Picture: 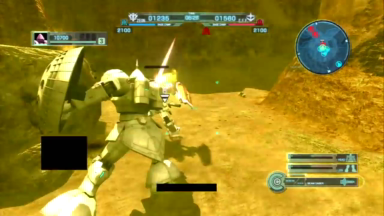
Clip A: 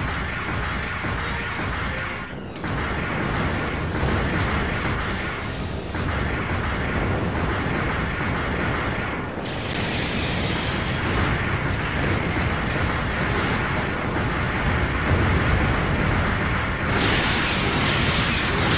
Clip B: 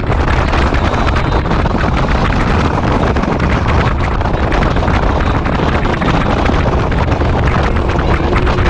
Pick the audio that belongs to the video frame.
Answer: A